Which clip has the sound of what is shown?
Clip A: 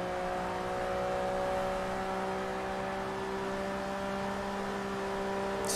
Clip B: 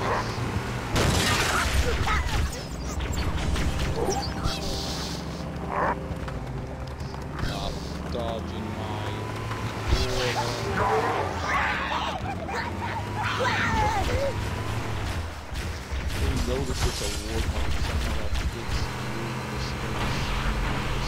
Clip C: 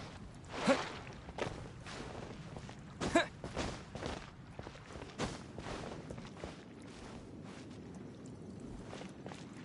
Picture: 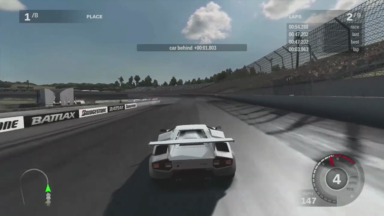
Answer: A